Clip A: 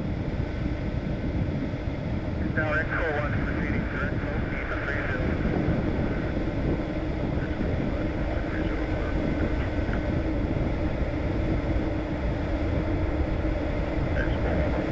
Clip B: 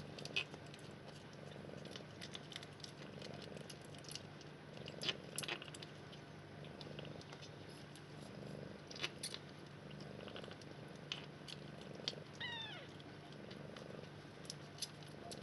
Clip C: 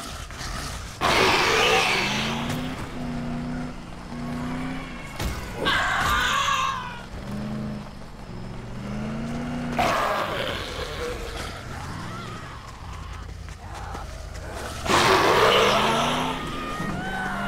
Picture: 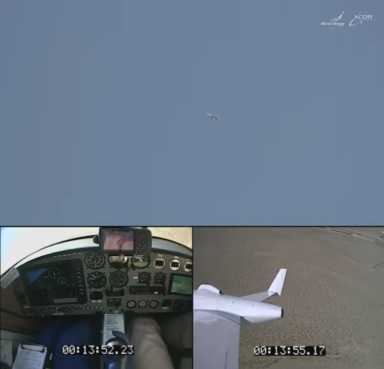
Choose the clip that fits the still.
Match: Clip A